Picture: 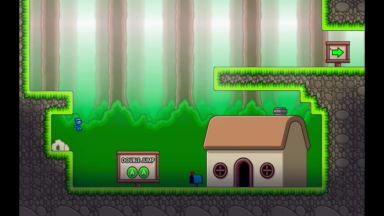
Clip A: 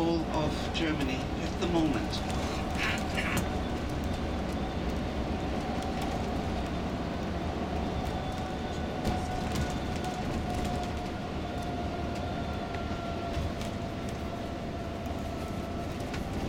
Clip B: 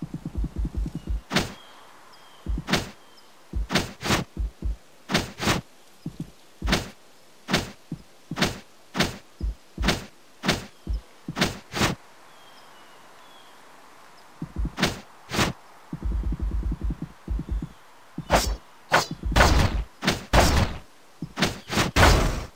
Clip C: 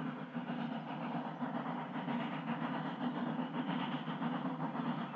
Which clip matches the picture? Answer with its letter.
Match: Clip B